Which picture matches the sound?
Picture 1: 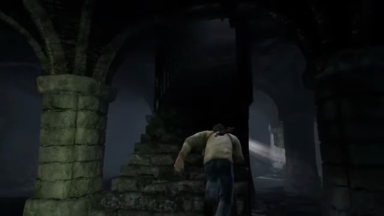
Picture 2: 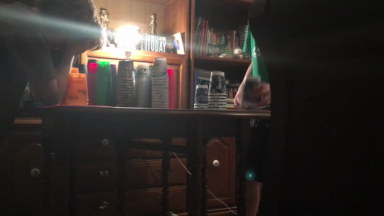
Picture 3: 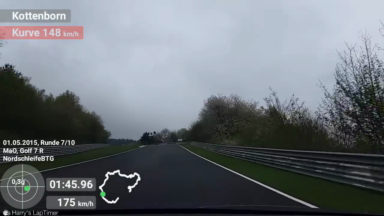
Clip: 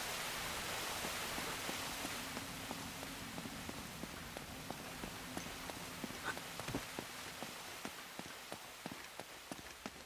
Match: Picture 1